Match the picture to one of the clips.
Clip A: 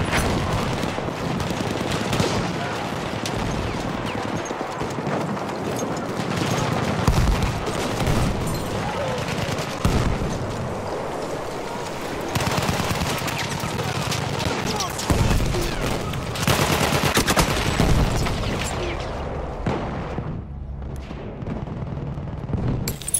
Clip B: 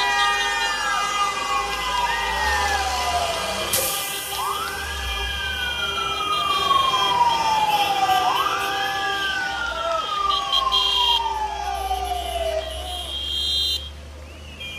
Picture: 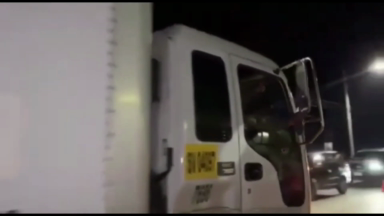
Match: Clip B